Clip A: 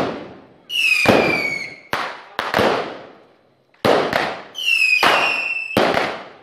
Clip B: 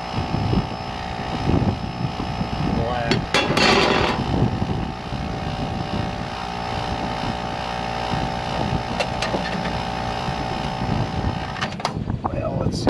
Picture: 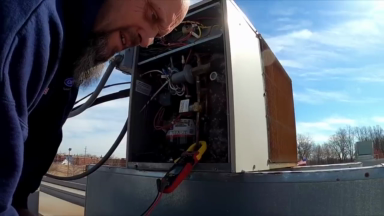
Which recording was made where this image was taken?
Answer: B